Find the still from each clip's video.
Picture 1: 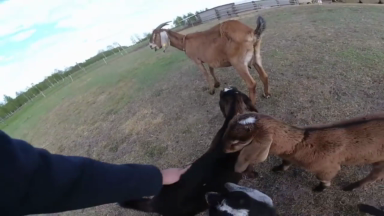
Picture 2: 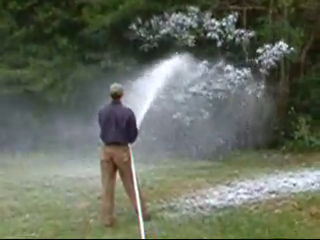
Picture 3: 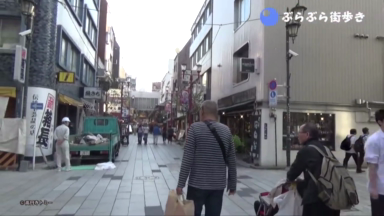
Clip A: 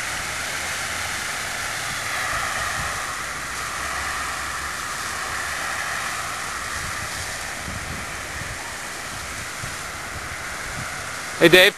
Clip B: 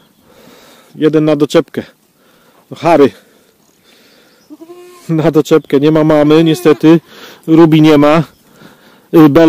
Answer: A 2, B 1